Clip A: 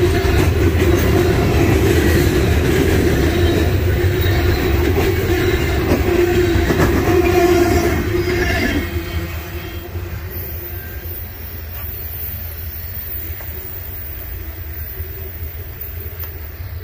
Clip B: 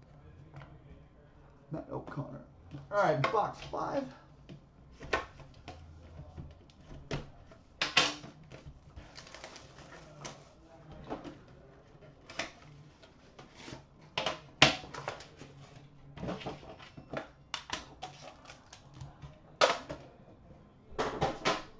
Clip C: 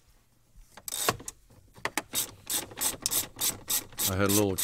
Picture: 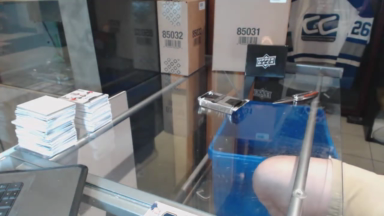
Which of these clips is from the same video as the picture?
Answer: B